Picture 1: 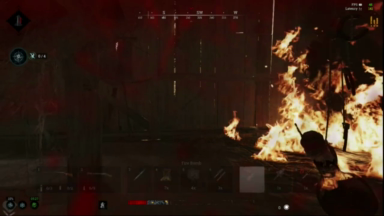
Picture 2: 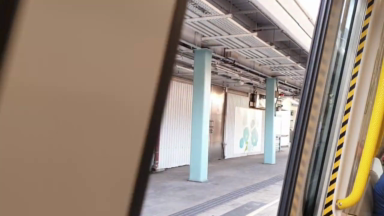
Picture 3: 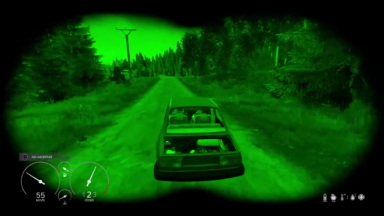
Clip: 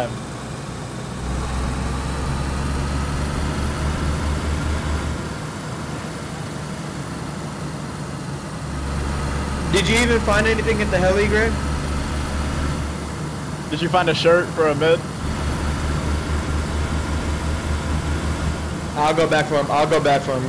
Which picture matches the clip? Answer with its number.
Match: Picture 3